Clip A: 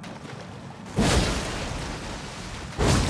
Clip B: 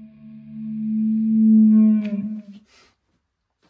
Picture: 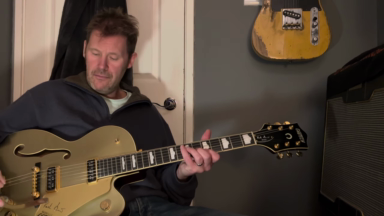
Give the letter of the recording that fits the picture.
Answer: B